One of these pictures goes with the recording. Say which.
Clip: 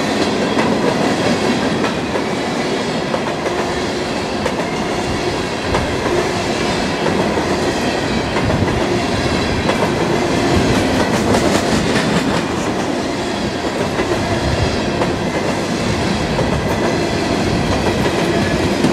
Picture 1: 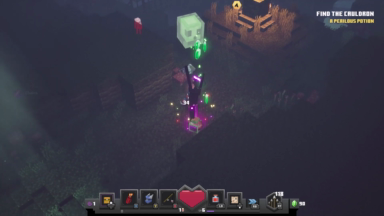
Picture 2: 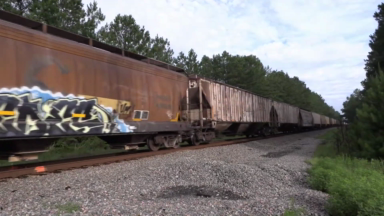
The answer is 2